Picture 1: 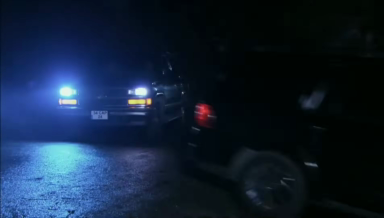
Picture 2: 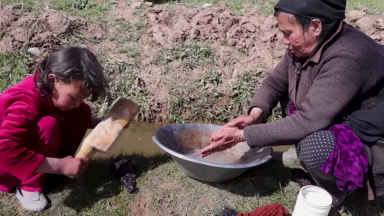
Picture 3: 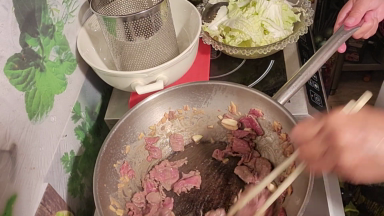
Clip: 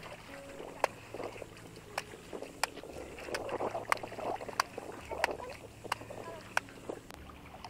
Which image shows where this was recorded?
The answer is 2